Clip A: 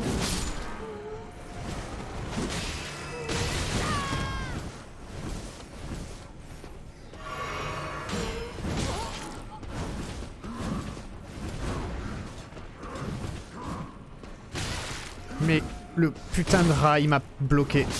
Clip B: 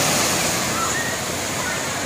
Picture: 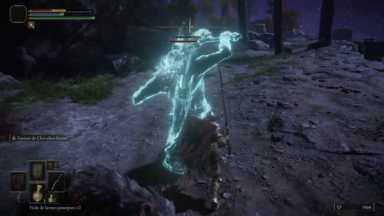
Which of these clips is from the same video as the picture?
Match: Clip A